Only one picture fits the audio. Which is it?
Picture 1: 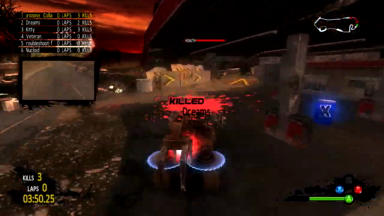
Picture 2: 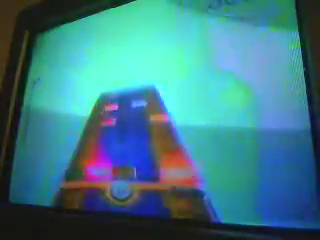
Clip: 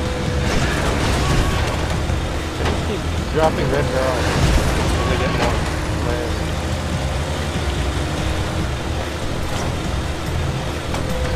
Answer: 1